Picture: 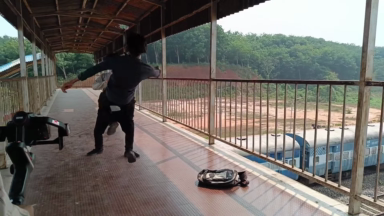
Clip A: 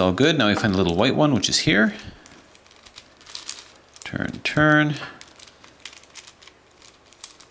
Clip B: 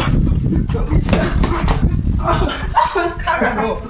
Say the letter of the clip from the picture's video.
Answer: B